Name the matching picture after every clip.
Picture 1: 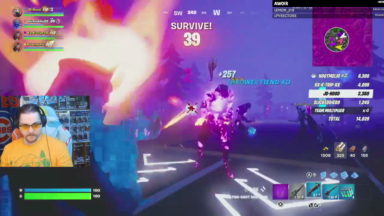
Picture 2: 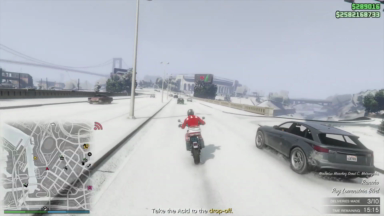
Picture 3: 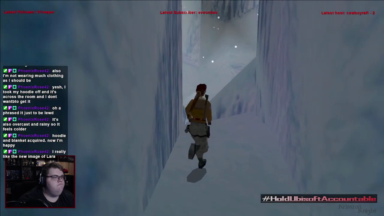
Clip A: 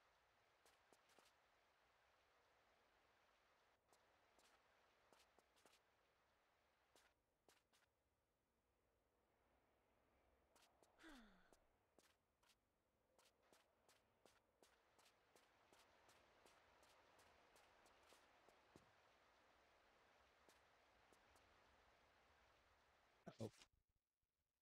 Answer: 3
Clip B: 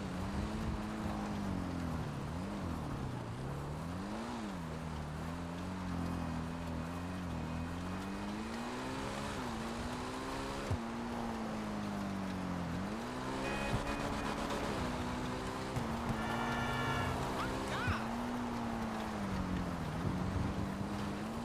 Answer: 2